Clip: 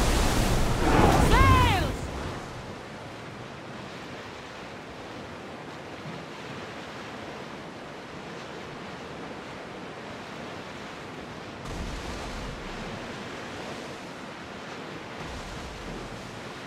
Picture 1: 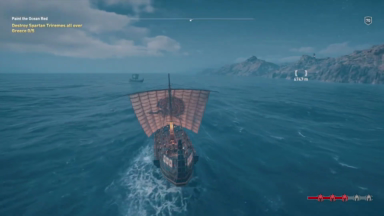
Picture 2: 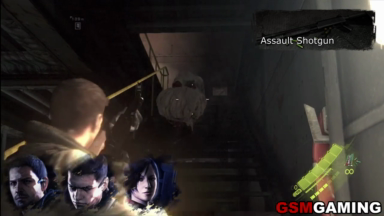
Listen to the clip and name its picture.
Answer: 1